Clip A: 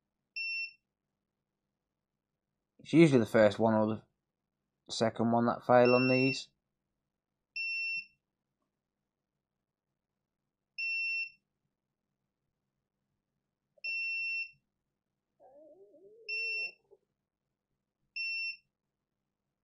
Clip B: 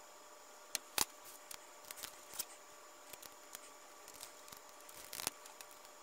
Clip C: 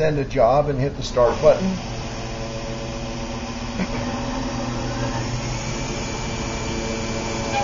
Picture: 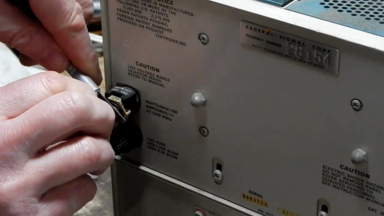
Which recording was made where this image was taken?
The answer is B